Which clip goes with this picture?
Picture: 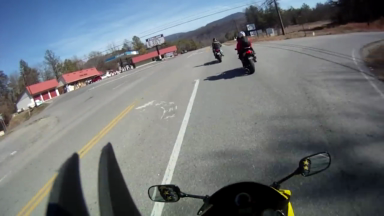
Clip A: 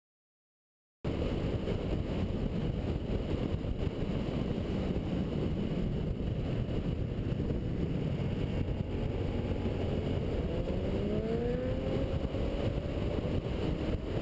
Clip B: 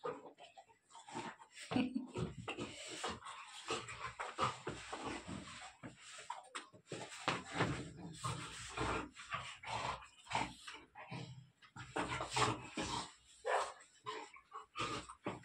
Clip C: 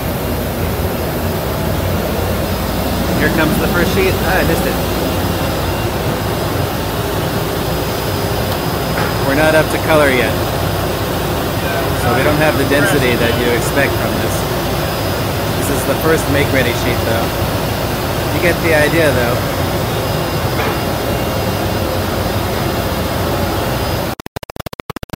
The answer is A